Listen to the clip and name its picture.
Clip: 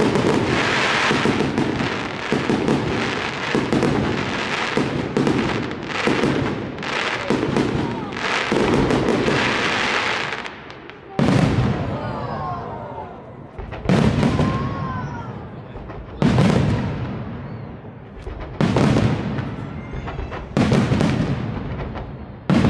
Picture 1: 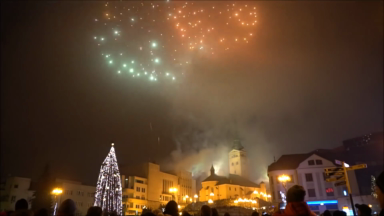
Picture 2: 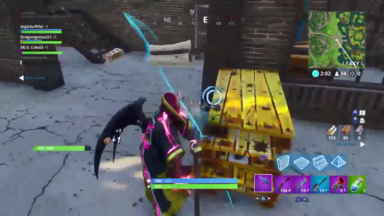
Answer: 1